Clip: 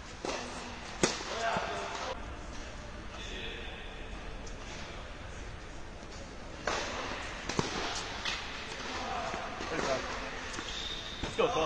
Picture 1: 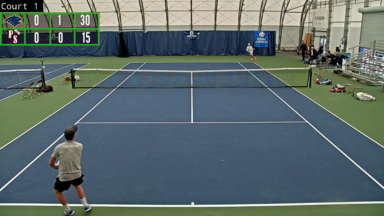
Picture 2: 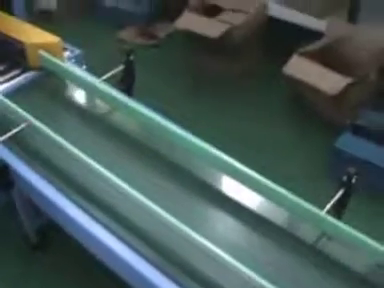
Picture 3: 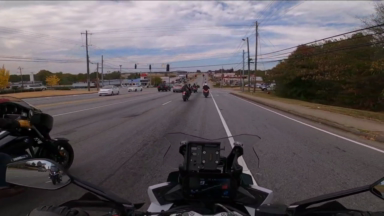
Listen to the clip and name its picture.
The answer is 1